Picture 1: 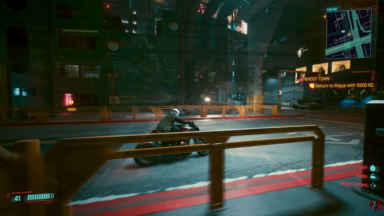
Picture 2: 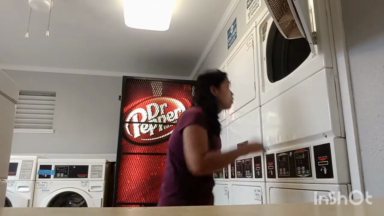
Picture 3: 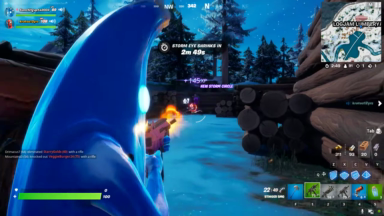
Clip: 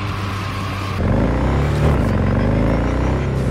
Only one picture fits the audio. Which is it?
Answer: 1